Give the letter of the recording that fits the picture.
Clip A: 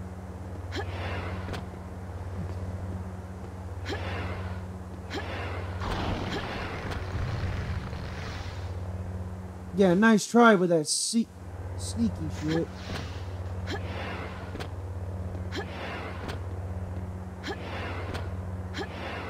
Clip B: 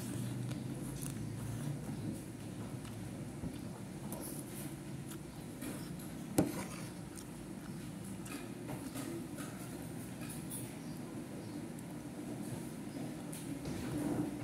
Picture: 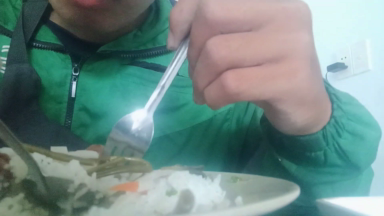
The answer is B